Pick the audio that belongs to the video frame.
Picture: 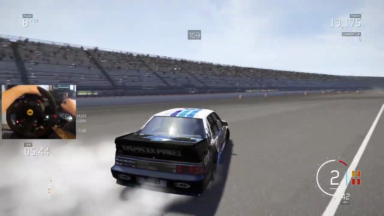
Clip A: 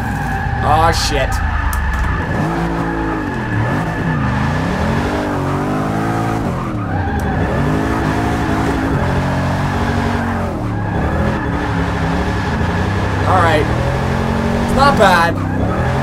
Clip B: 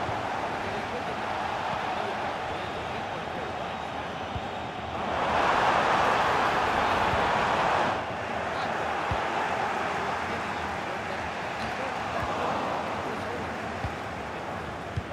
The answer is A